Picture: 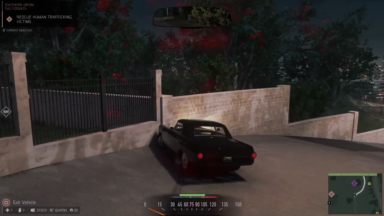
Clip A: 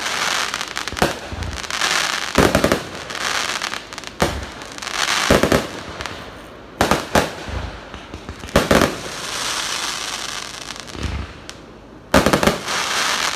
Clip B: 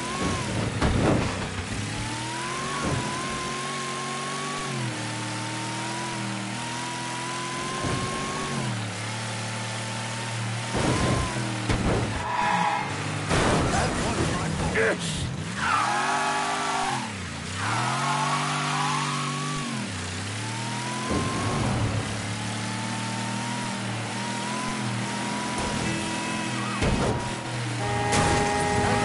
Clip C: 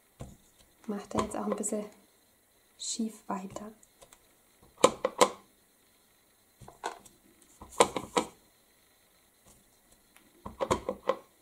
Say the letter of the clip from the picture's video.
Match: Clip B